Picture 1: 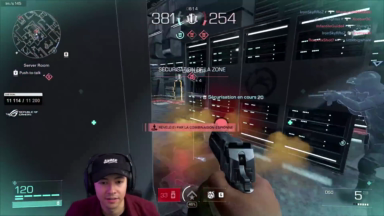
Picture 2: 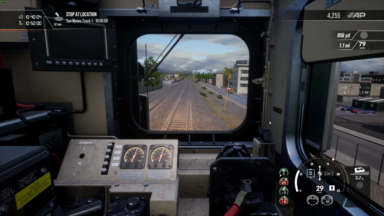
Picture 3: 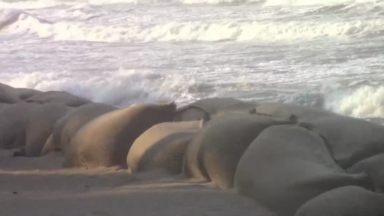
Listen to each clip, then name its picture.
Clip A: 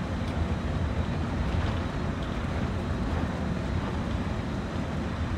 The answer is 2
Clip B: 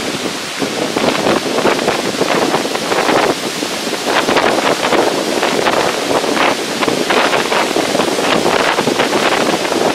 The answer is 3